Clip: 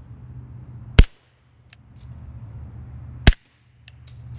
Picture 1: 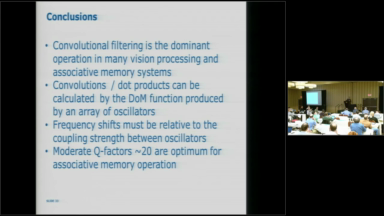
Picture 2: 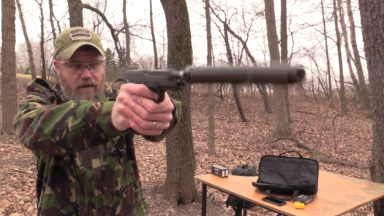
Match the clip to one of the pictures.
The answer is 2